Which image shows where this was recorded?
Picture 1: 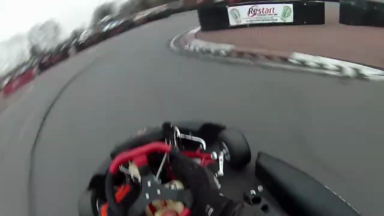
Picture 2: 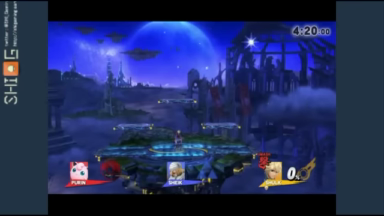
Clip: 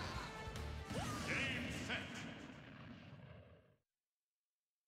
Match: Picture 2